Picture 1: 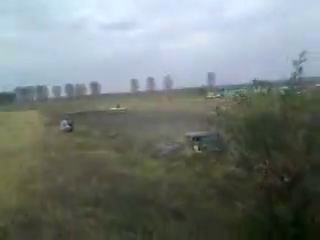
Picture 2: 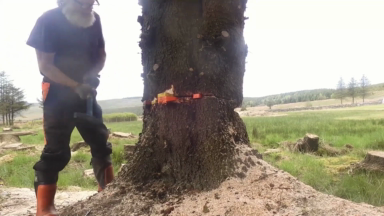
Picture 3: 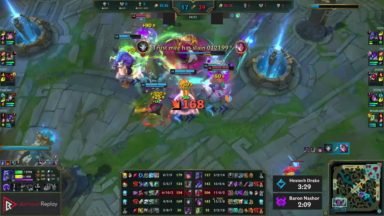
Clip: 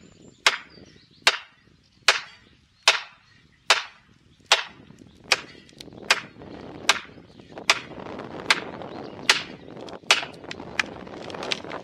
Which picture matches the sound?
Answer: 2